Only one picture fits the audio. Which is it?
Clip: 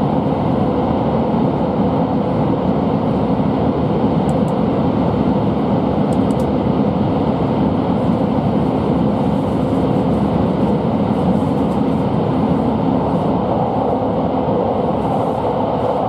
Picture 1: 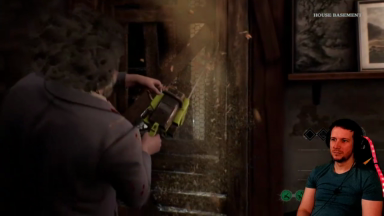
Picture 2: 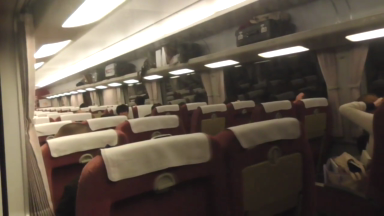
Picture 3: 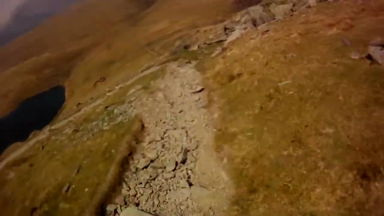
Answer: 2